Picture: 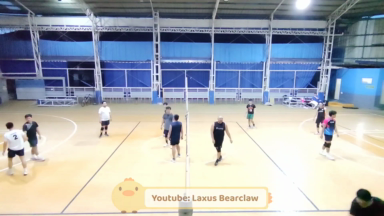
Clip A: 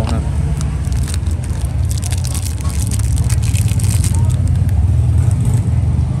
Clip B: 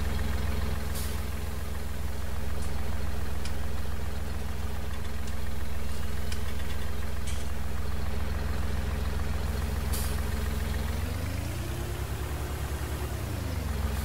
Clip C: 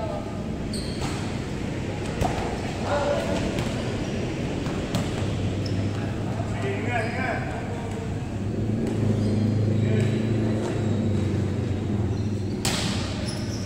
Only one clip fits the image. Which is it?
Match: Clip C